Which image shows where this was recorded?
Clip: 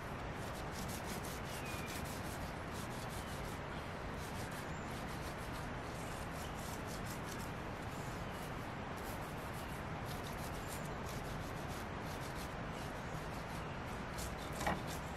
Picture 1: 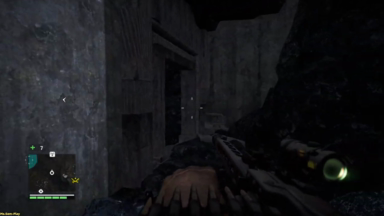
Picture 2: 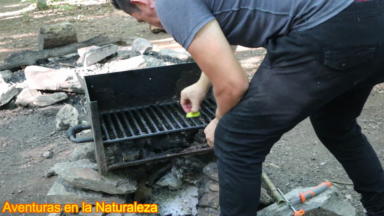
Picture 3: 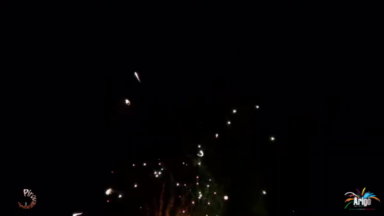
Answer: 2